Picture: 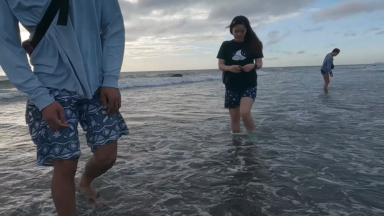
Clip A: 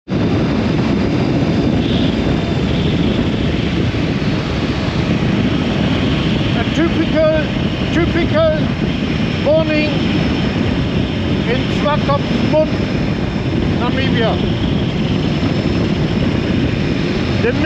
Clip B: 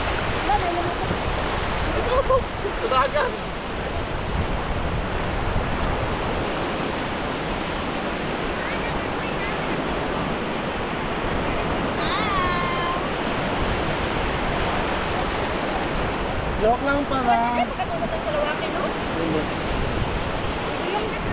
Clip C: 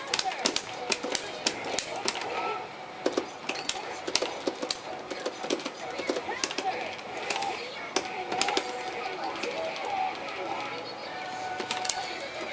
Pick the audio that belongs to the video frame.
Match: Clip B